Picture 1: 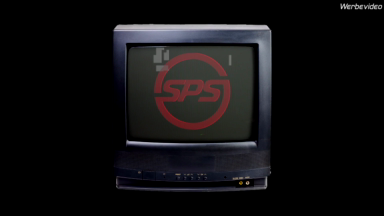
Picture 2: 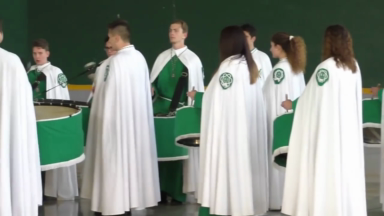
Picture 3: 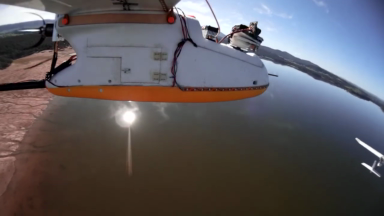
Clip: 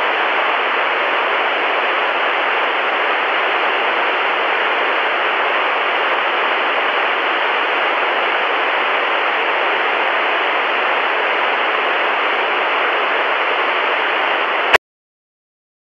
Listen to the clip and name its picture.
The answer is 1